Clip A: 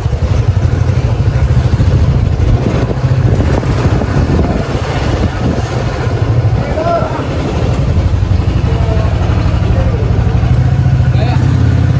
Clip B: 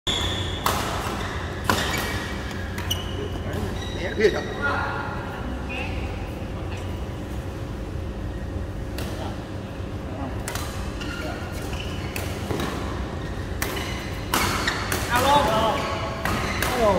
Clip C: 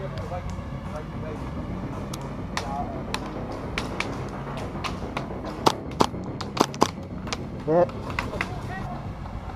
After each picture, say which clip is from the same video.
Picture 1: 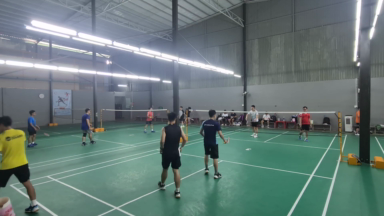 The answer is B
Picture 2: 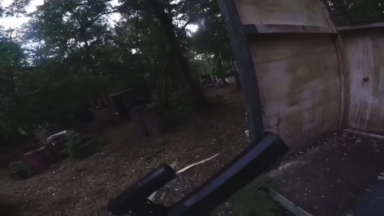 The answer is C